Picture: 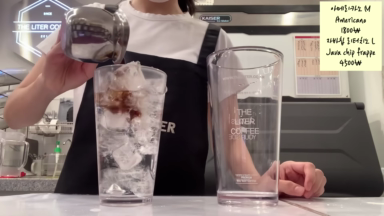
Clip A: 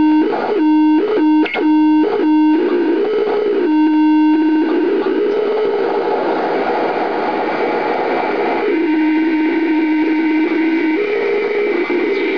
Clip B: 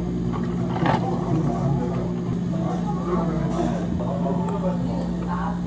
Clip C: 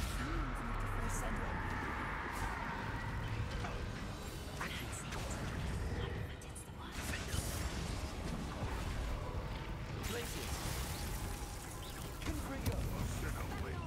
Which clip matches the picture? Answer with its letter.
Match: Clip B